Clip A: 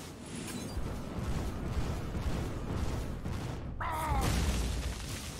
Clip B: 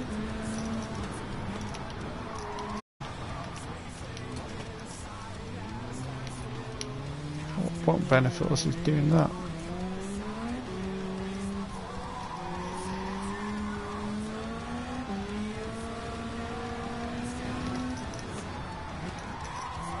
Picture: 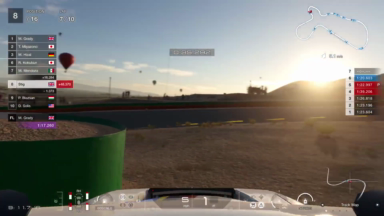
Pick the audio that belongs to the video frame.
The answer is B